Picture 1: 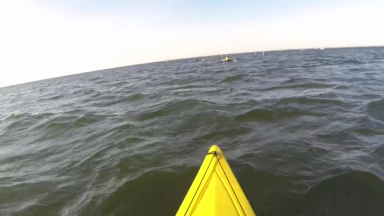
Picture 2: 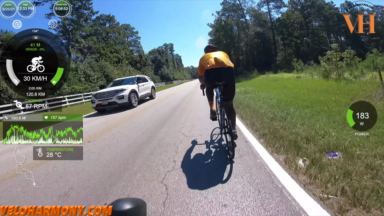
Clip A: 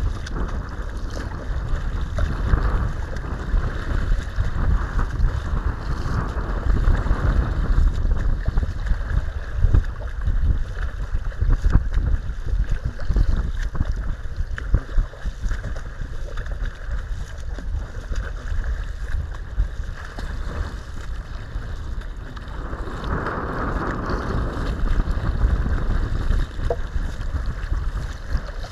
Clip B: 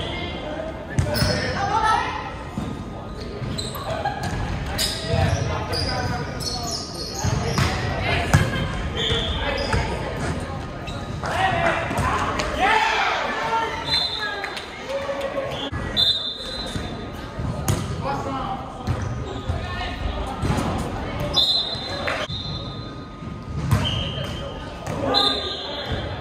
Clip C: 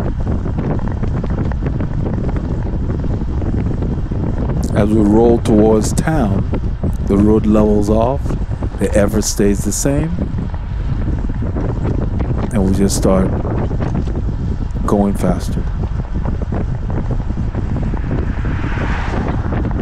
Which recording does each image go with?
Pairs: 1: A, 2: C